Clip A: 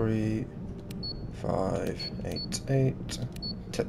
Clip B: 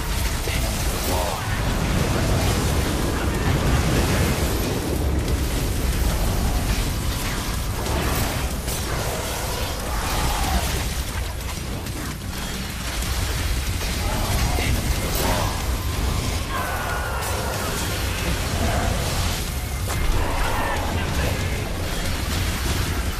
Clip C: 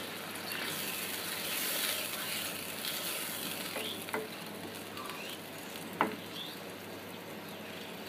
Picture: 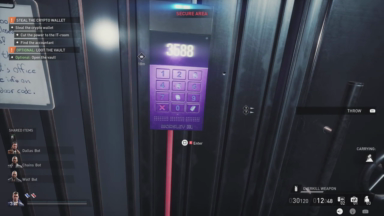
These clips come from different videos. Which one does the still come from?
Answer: A